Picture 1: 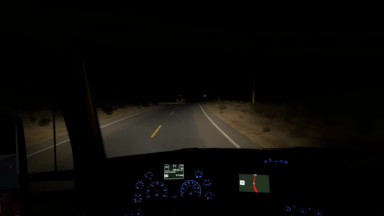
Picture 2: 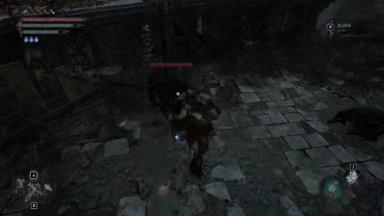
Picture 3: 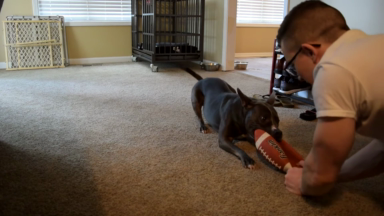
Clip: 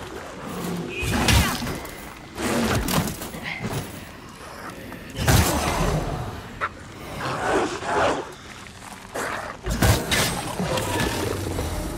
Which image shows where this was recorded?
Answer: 2